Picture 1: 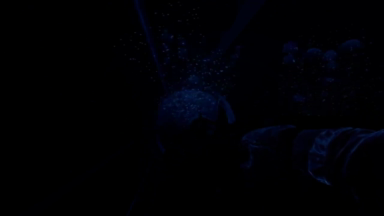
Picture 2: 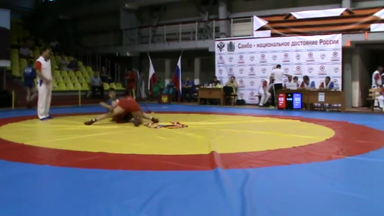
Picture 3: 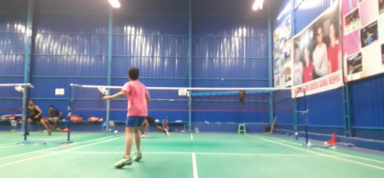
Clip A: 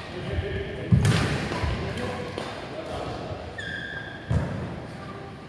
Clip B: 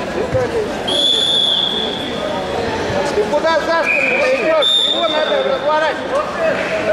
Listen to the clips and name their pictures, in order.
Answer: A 3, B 2